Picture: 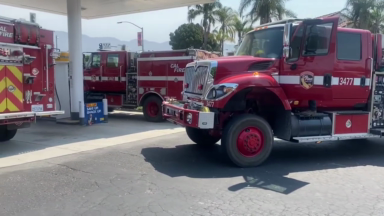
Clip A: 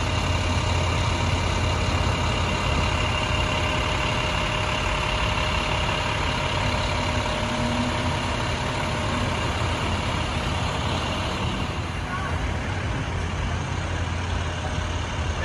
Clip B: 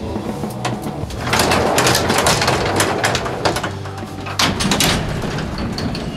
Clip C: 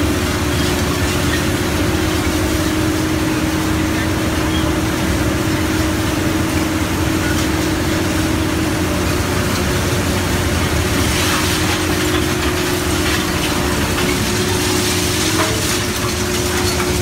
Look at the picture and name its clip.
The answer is A